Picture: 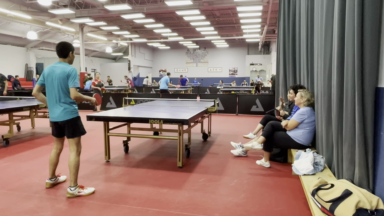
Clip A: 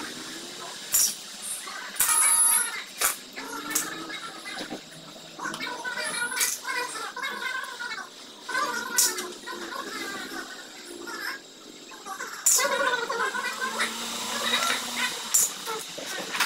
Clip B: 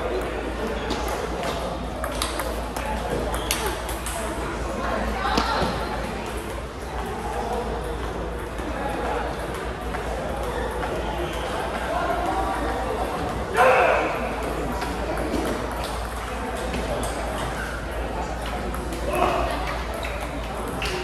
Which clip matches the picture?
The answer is B